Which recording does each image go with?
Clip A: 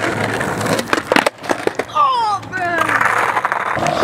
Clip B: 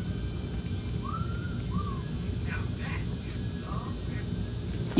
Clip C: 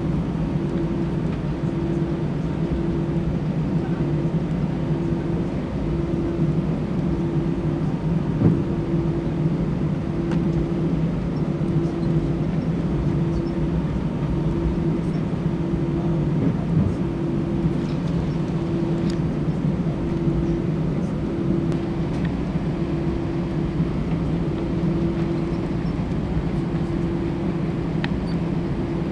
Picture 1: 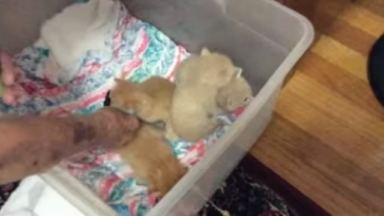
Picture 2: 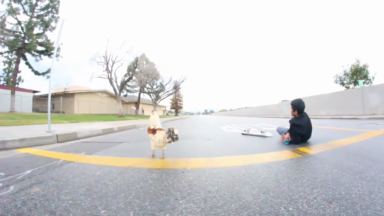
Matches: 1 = B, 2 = A